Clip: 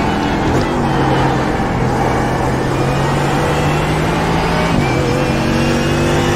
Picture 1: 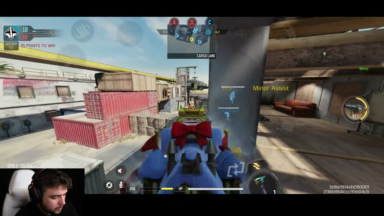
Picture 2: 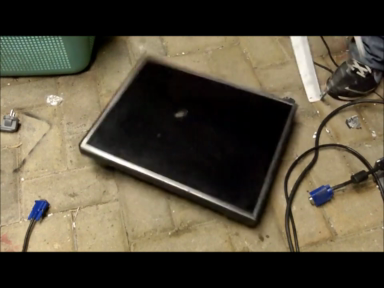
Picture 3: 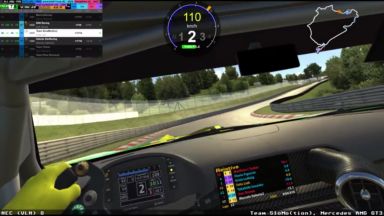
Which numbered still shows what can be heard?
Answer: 3